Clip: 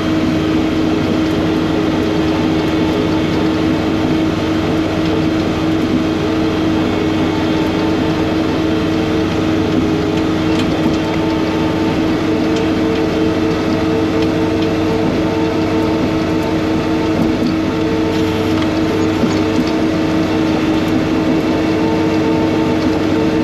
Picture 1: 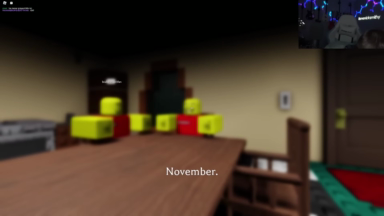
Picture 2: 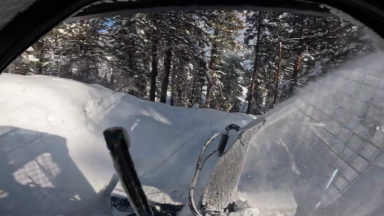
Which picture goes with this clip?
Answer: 2